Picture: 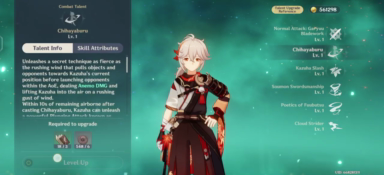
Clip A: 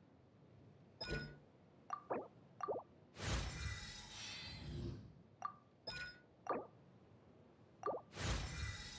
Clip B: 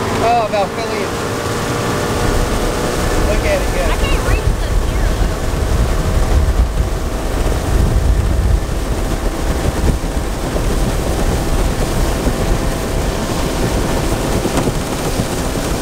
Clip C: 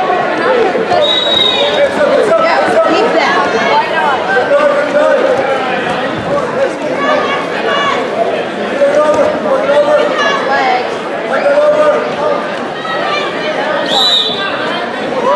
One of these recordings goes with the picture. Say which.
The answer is A